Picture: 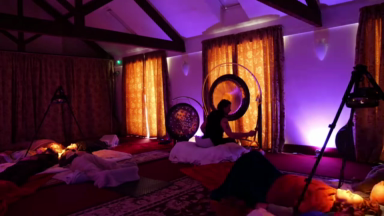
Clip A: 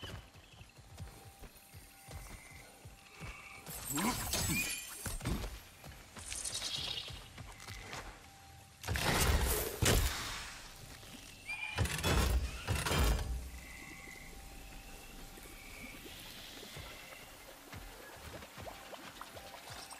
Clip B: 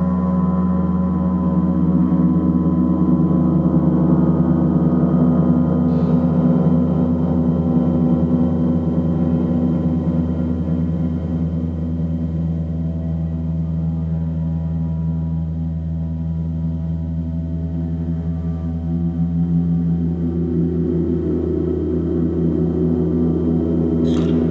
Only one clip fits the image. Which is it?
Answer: B